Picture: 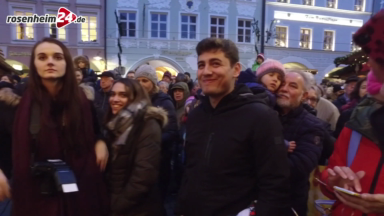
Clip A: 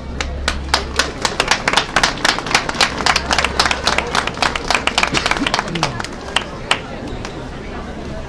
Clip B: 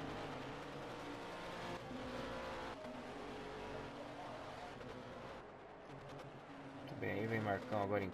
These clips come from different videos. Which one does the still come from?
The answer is A